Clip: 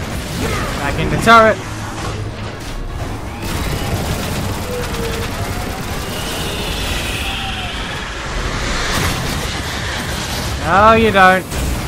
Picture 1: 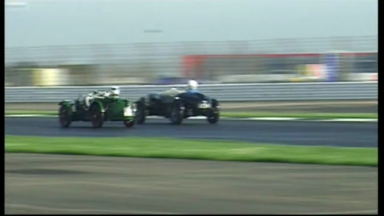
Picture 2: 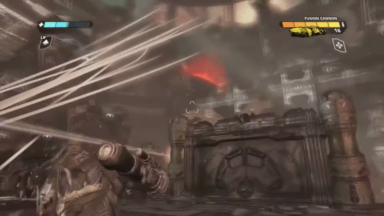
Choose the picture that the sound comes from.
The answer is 2